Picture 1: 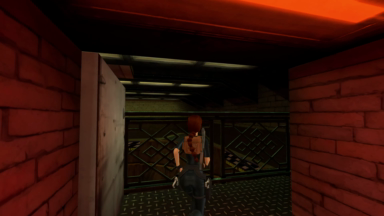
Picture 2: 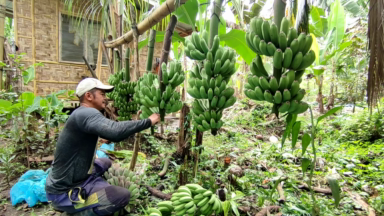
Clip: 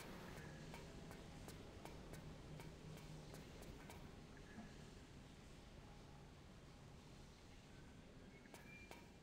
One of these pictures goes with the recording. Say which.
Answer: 1